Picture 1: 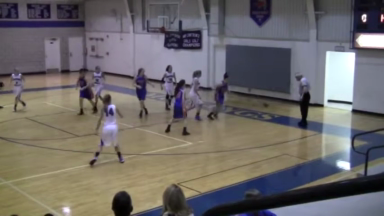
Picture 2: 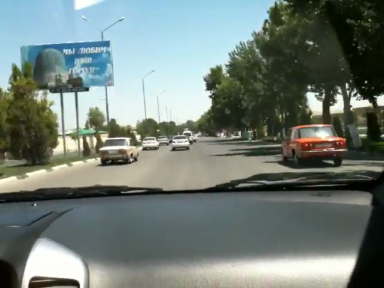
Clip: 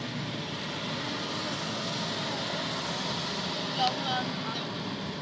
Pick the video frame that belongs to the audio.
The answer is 2